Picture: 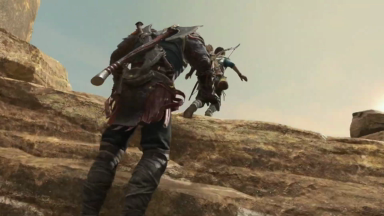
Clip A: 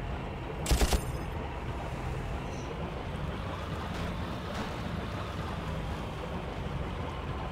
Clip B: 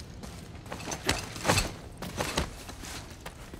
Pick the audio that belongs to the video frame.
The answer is B